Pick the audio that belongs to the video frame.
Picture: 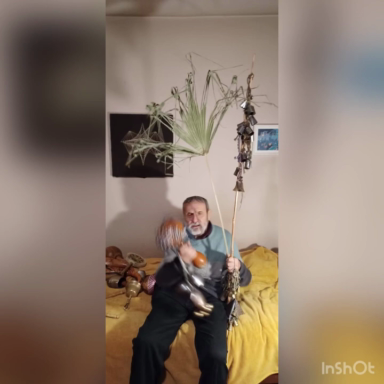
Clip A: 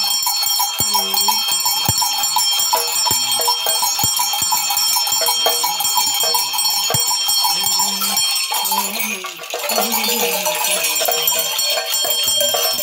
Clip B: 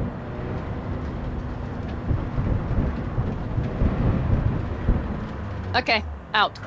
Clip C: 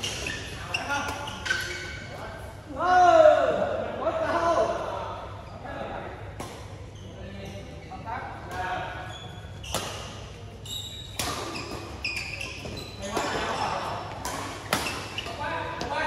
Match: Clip A